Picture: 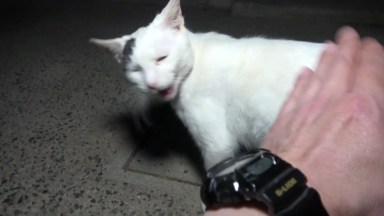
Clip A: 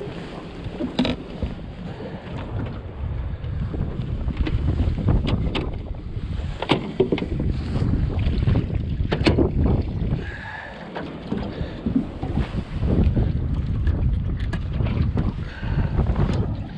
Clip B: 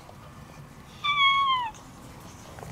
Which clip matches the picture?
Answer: B